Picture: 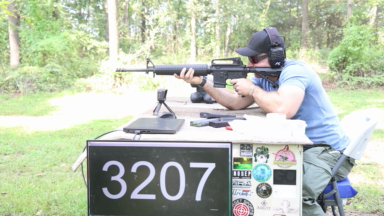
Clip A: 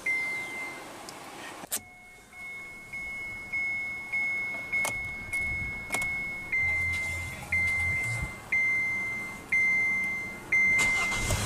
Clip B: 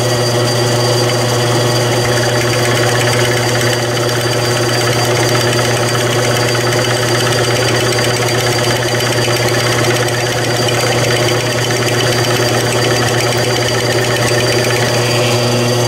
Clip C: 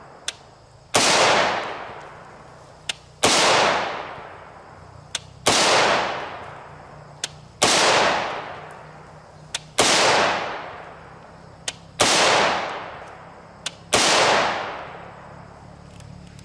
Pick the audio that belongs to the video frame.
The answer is C